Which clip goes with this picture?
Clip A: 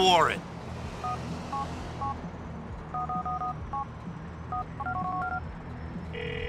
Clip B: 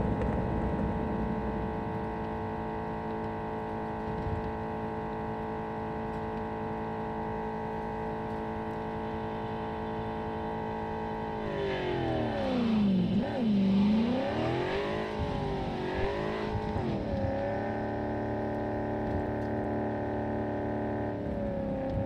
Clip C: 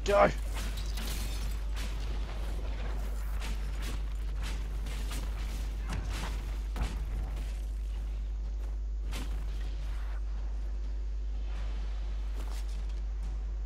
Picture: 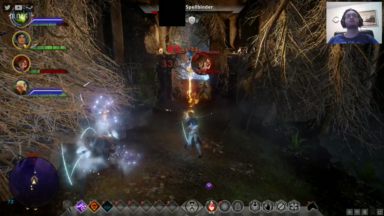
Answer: C